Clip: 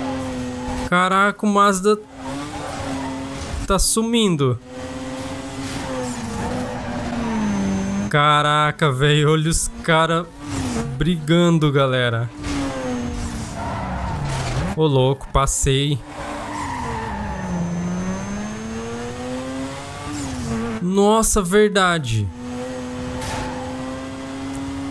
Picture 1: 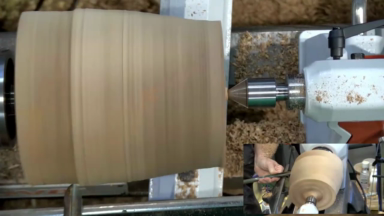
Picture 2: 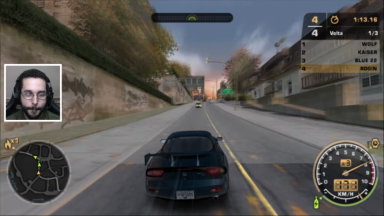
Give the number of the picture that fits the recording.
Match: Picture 2